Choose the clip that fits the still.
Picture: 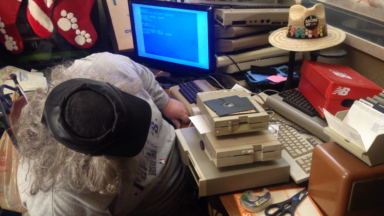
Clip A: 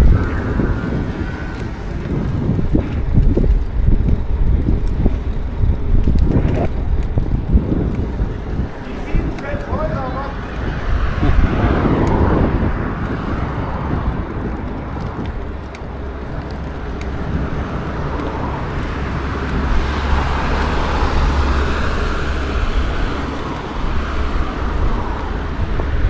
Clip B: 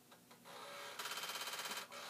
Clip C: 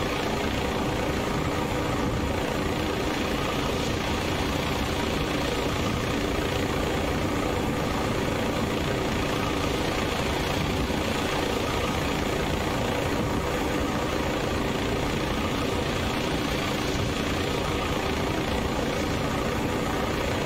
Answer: B